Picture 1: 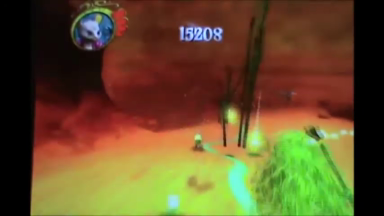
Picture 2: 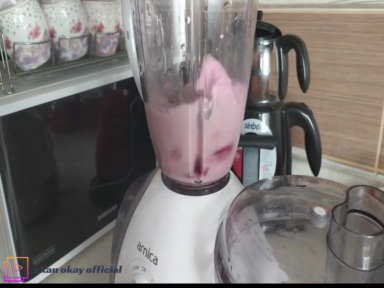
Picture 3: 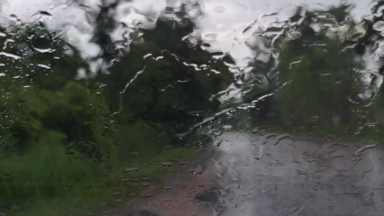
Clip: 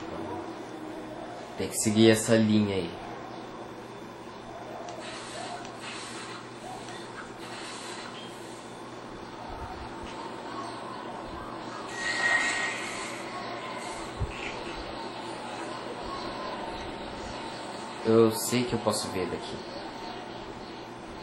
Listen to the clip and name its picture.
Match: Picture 1